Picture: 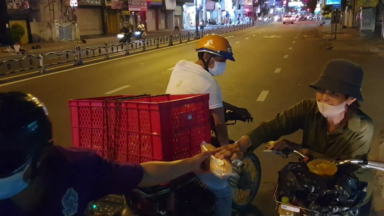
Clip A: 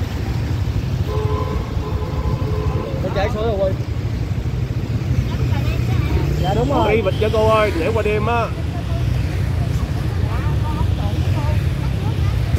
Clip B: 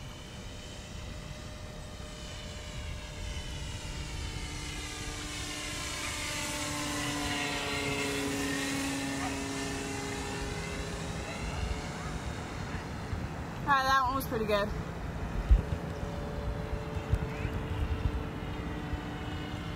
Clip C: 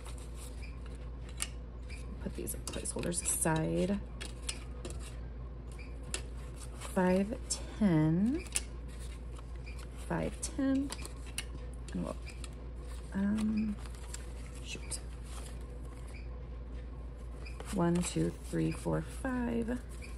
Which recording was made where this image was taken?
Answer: A